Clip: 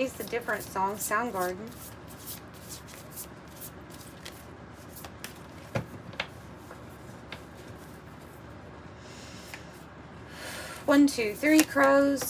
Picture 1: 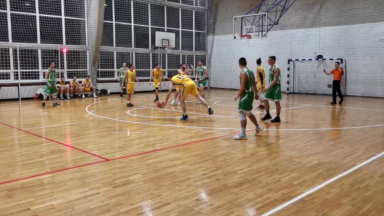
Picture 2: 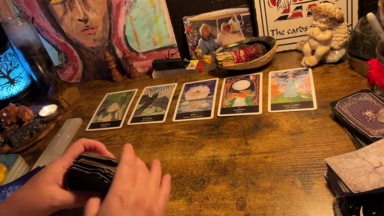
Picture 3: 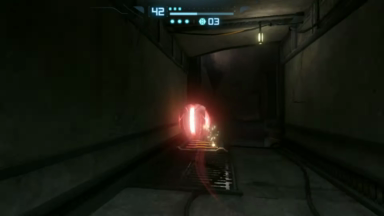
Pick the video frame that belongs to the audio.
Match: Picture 2